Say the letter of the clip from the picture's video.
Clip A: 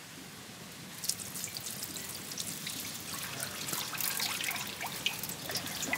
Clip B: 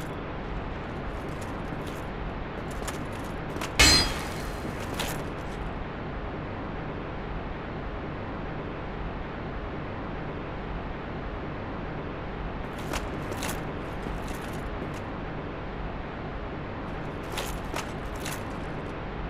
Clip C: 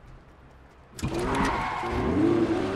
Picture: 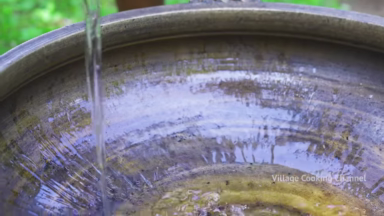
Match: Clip A